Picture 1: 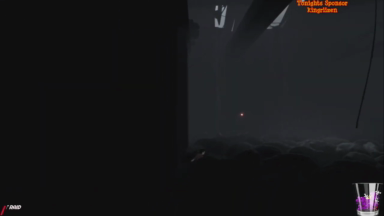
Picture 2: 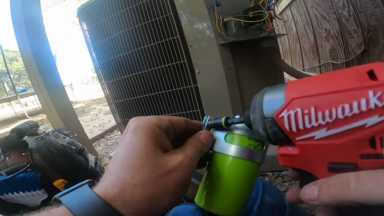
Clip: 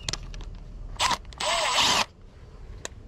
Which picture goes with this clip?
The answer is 2